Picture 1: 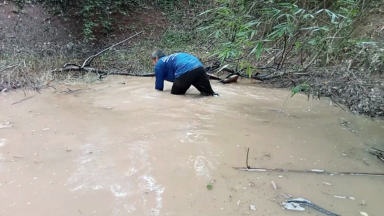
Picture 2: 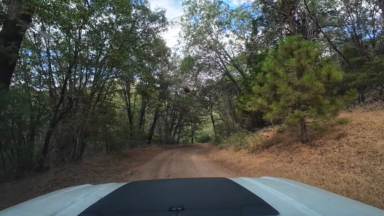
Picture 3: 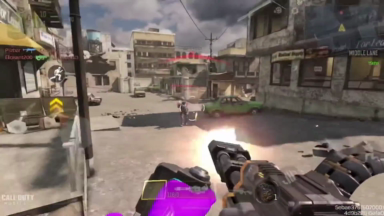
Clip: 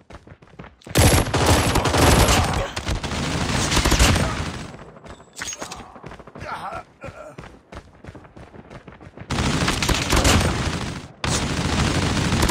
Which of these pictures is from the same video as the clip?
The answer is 3